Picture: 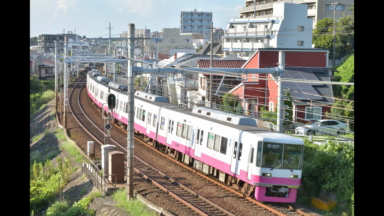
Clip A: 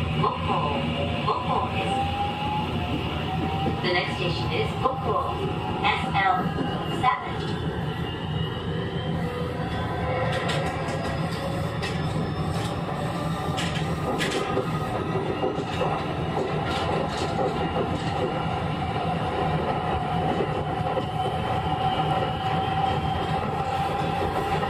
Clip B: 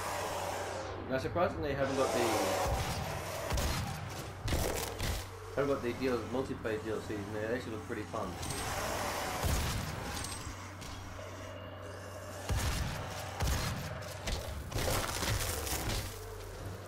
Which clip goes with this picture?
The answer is A